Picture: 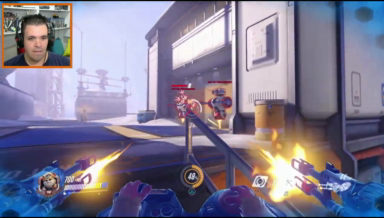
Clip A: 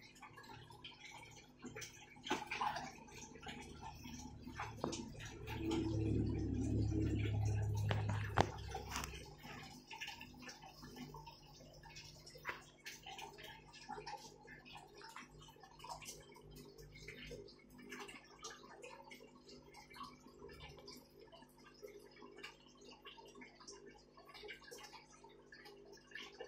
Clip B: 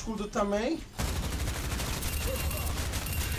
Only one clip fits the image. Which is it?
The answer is B